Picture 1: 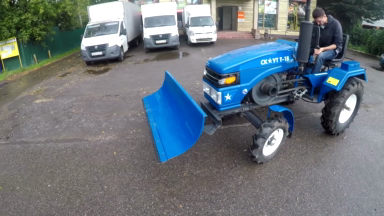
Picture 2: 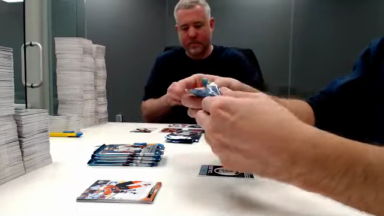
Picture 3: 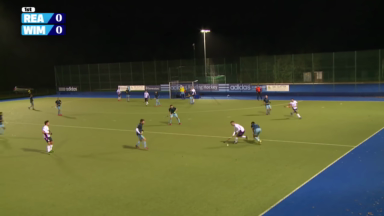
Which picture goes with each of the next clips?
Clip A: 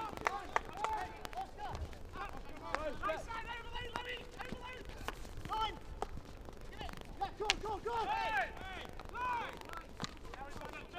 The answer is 3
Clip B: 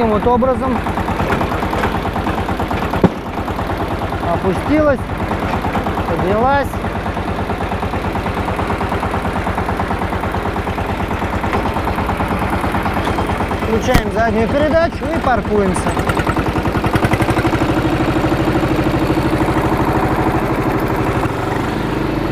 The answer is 1